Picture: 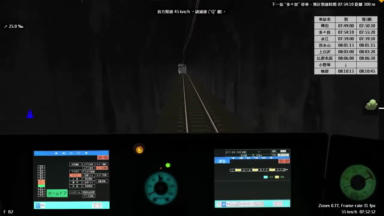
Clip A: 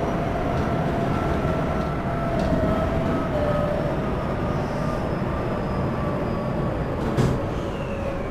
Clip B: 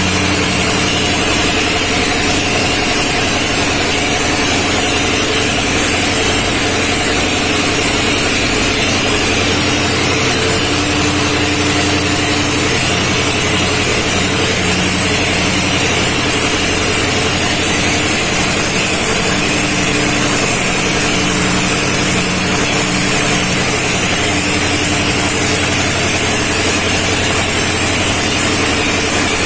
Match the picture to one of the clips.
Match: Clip A